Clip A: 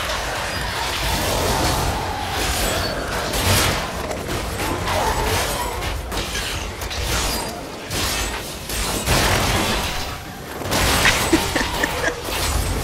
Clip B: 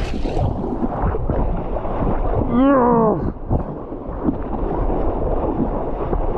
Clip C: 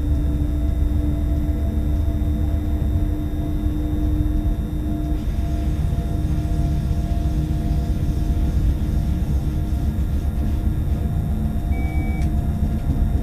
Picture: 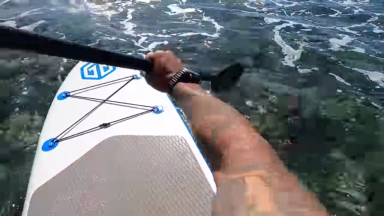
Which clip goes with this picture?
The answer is B